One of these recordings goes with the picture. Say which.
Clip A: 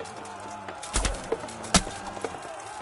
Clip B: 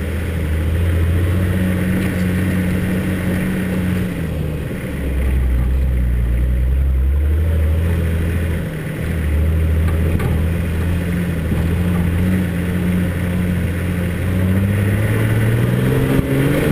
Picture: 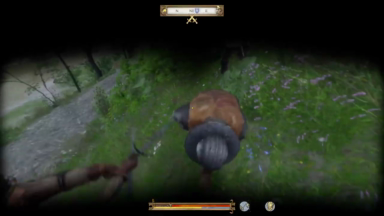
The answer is A